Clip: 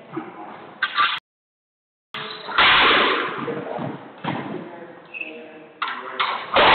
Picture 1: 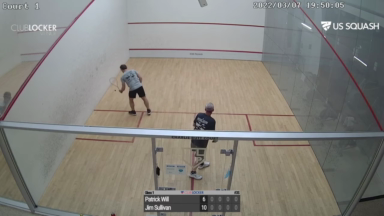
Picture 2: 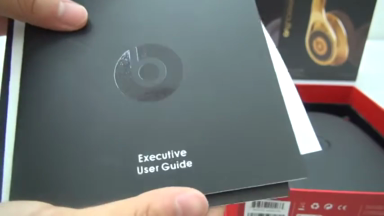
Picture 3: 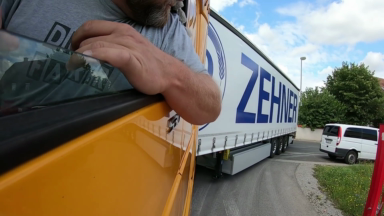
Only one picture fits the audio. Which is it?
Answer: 1